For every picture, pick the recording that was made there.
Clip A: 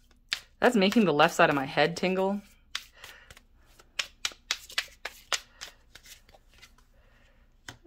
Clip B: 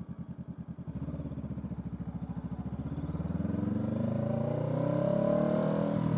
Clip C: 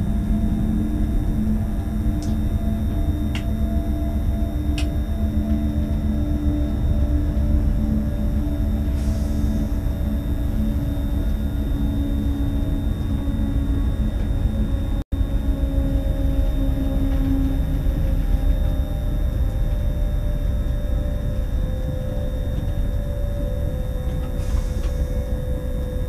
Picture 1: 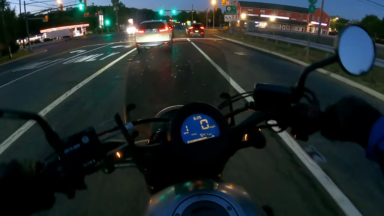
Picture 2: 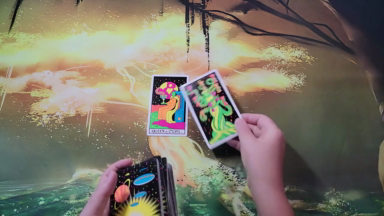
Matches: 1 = B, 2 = A